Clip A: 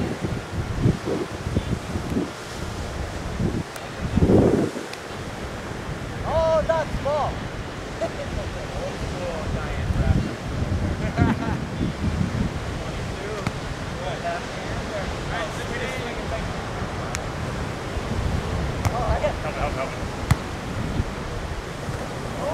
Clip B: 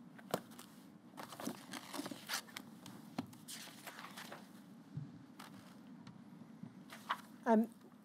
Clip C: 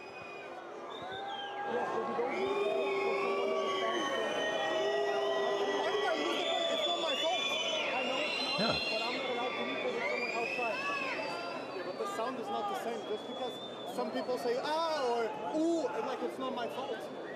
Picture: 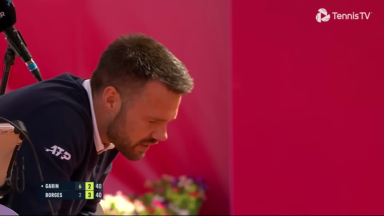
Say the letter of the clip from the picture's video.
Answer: C